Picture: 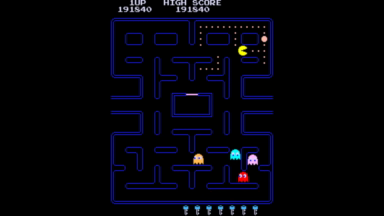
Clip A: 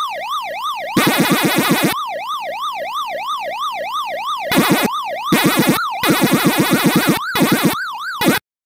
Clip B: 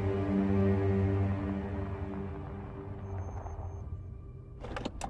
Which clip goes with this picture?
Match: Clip A